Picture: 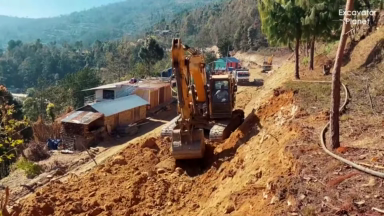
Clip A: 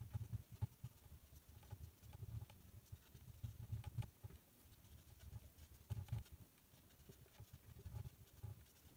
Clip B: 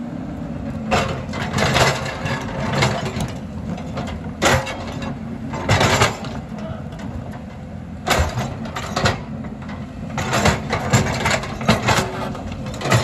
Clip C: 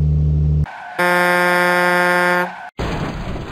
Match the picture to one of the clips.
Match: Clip B